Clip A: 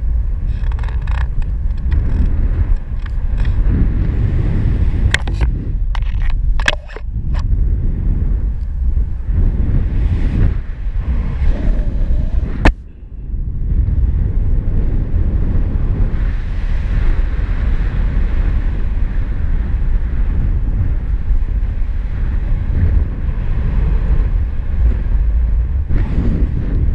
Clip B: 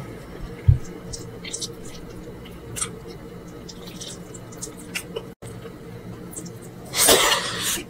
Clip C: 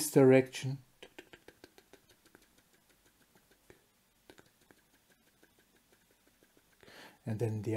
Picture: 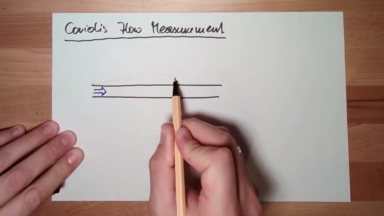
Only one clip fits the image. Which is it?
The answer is C